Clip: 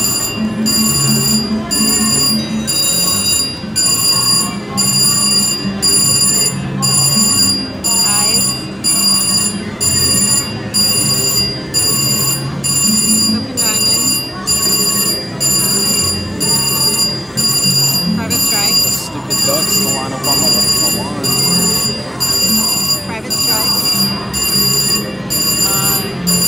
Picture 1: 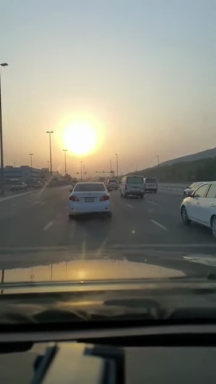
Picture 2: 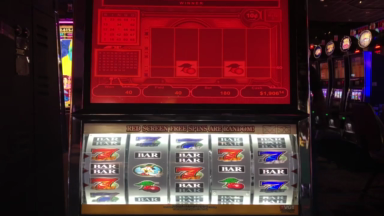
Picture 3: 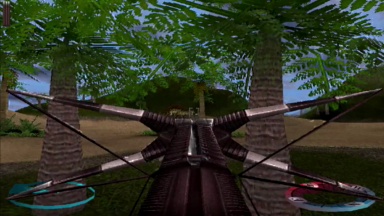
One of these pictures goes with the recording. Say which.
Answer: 2